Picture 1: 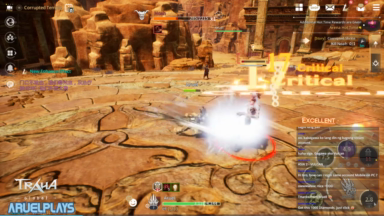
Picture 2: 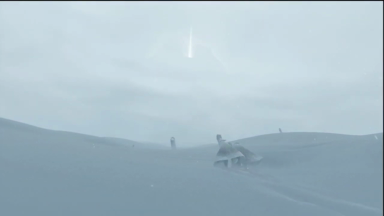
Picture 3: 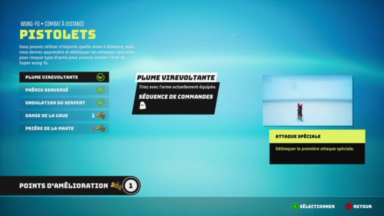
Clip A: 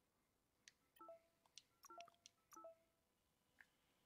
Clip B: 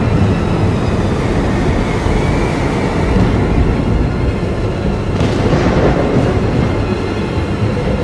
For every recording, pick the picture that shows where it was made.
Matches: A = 3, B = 2